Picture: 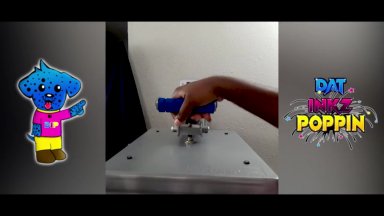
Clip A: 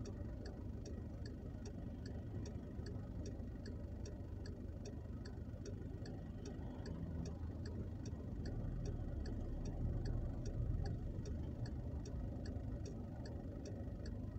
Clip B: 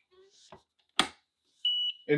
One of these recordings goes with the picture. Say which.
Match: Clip B